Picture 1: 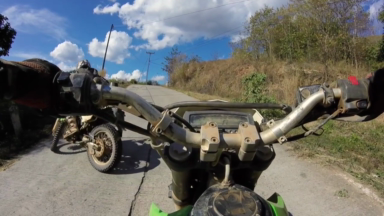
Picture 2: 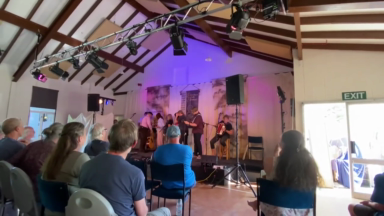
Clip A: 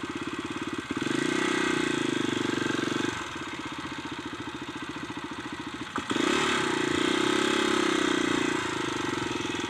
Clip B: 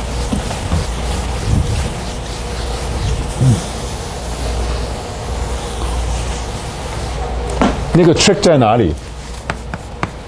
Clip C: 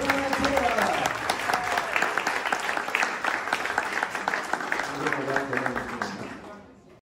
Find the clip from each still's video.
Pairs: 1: A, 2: C